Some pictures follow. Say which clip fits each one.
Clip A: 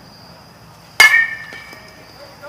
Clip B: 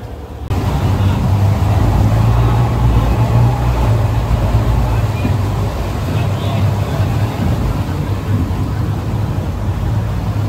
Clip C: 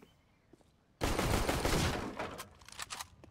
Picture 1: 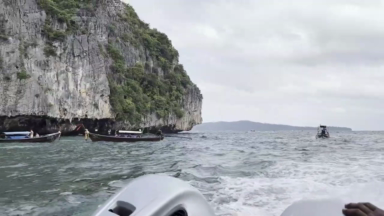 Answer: B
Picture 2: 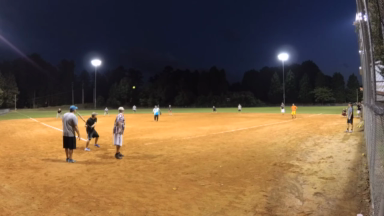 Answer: A